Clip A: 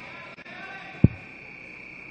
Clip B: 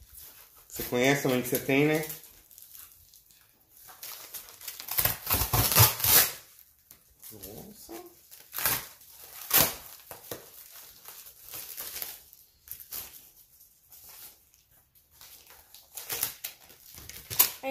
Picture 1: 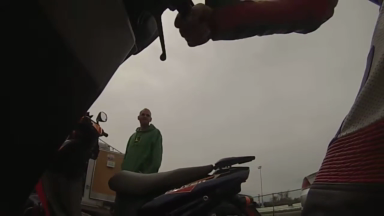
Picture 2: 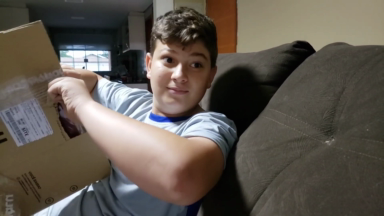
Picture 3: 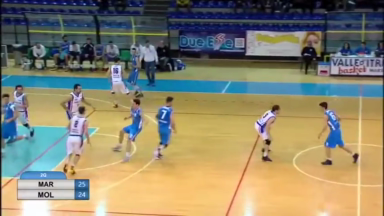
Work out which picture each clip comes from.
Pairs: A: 3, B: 2